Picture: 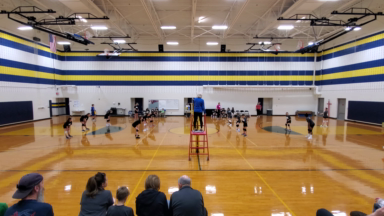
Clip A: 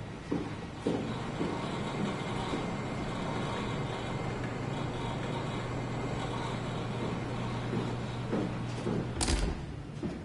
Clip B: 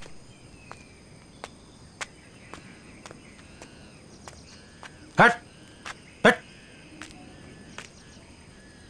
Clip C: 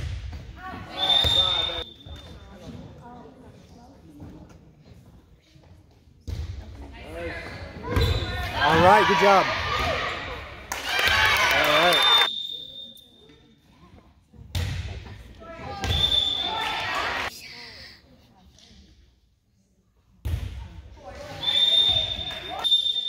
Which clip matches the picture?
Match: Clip C